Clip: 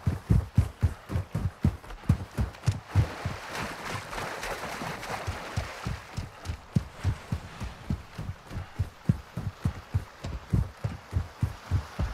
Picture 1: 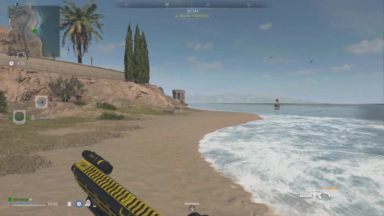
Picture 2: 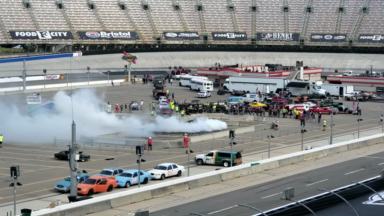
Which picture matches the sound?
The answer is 1